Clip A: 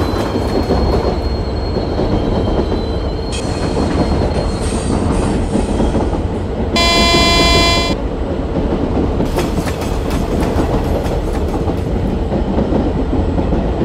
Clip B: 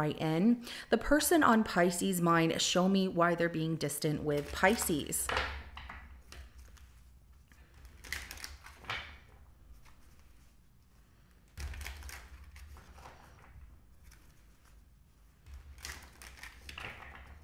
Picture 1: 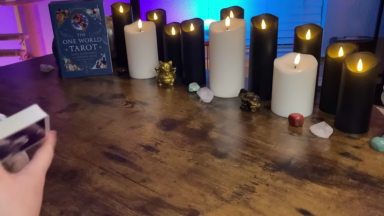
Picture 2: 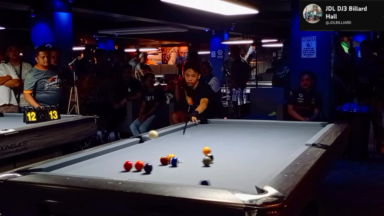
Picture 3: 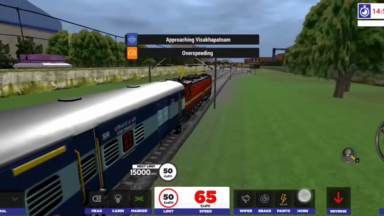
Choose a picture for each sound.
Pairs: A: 3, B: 1